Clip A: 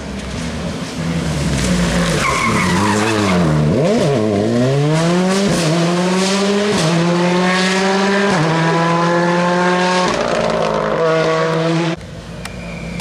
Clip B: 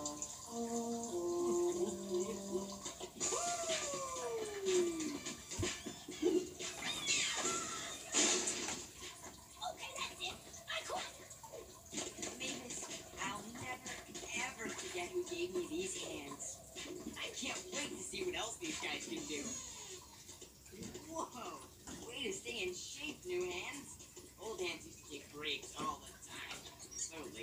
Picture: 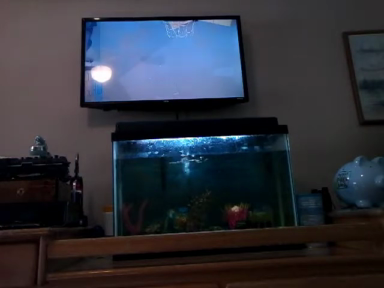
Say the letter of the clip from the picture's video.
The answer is B